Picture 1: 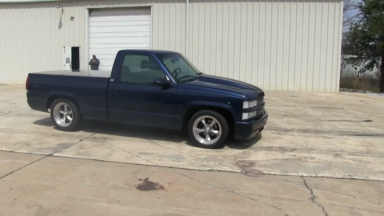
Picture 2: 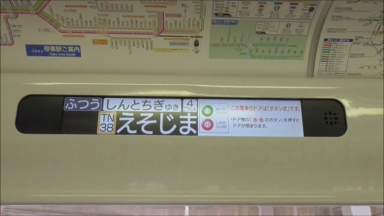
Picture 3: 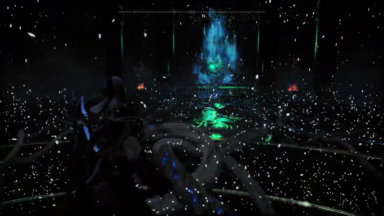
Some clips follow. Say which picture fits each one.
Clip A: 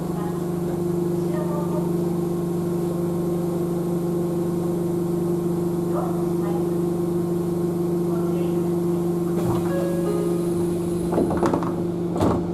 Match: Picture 2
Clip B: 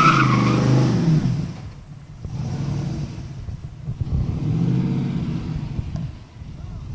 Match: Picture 1